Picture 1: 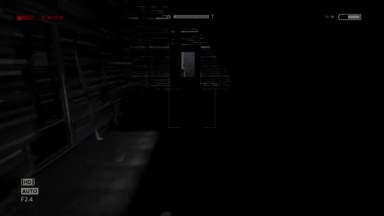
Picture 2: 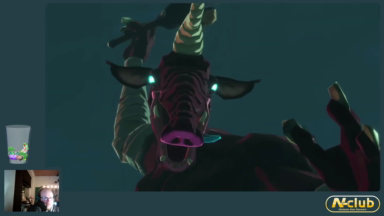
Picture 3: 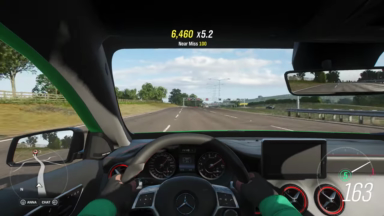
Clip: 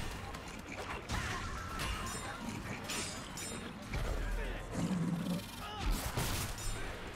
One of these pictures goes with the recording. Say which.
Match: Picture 2